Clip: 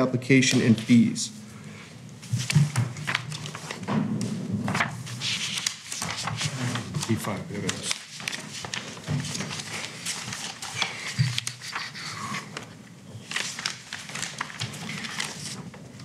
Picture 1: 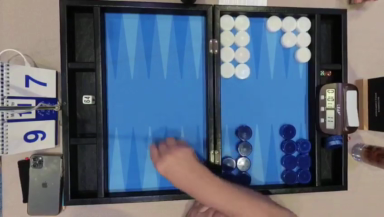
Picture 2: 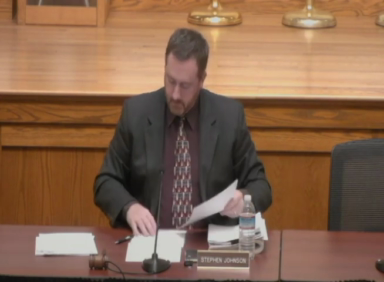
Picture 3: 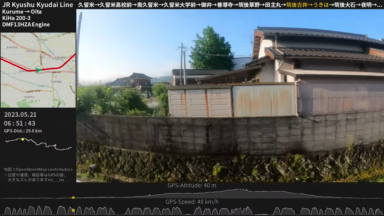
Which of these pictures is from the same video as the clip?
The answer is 2